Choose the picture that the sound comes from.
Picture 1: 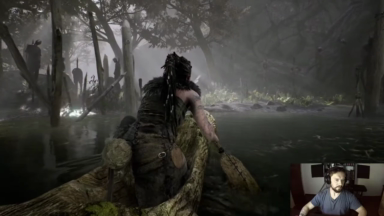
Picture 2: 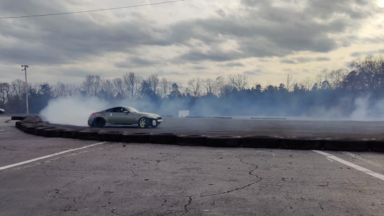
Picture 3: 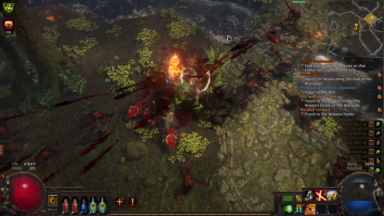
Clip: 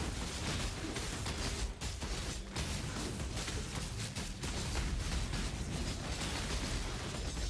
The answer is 3